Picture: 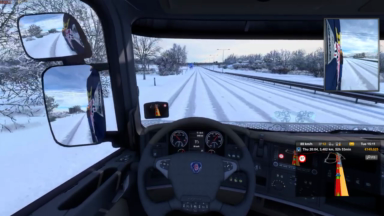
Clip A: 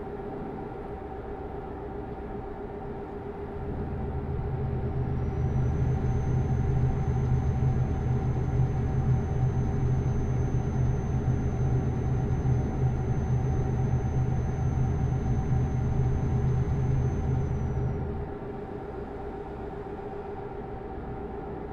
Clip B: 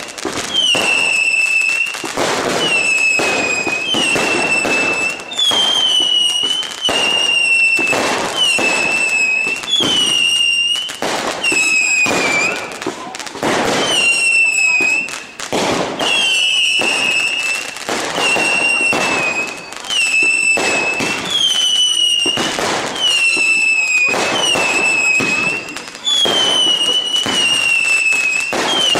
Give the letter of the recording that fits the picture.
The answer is A